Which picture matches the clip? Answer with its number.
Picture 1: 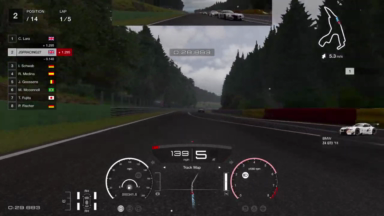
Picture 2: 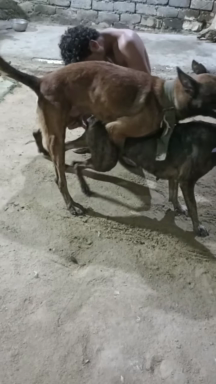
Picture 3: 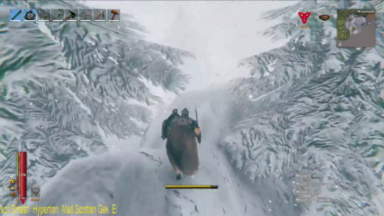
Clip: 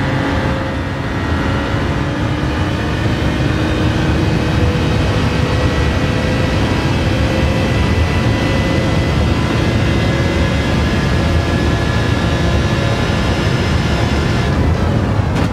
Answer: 1